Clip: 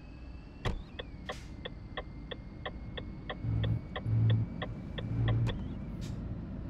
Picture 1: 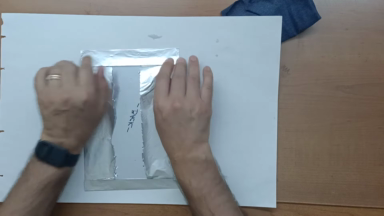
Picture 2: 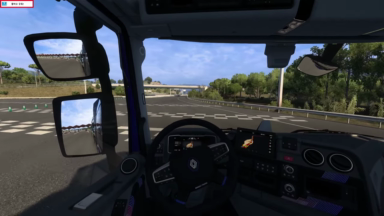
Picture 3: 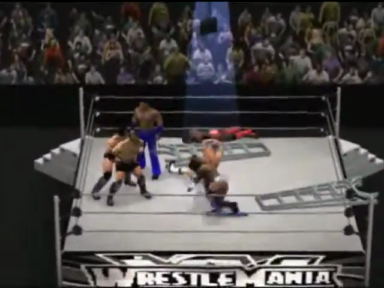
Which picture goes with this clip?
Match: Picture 2